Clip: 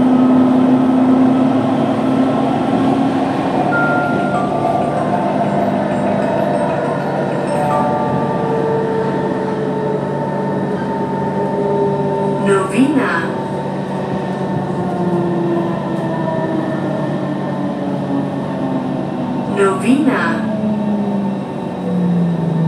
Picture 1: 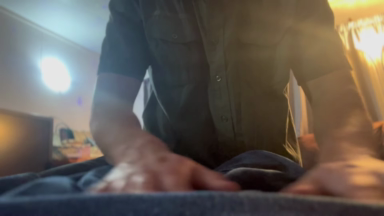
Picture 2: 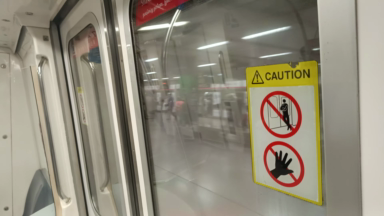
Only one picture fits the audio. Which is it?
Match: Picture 2